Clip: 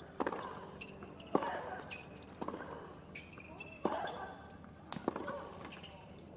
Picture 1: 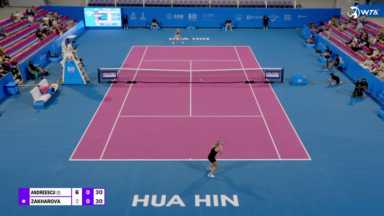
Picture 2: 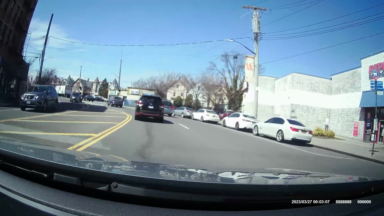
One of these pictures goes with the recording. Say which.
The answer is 1